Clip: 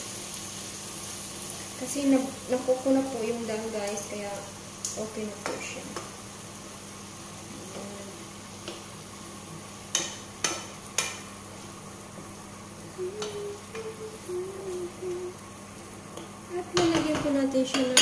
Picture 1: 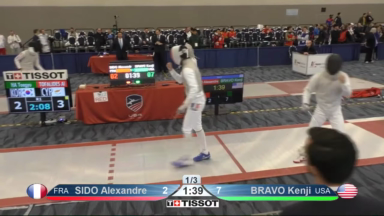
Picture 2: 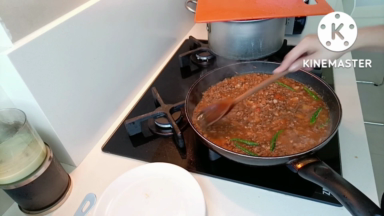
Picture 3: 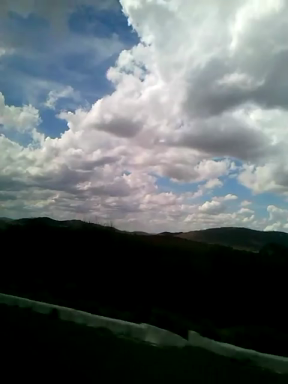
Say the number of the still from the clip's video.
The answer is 2